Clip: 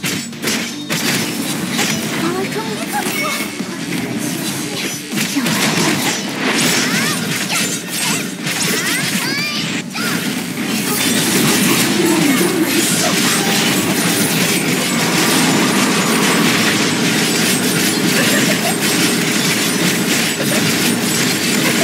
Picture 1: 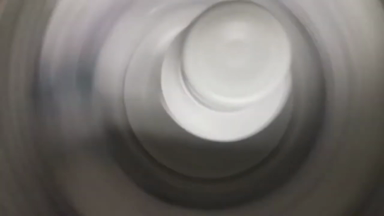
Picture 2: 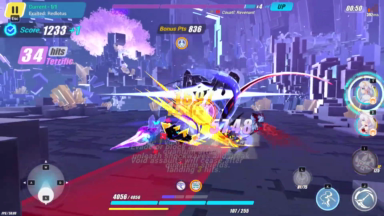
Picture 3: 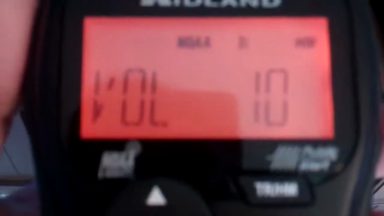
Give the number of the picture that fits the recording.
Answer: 2